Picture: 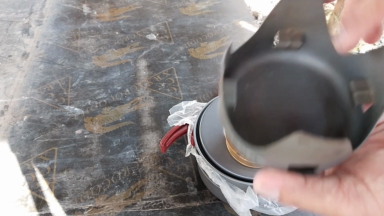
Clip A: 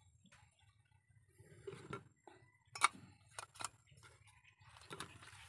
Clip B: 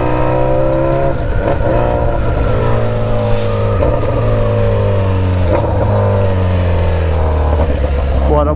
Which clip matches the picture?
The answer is A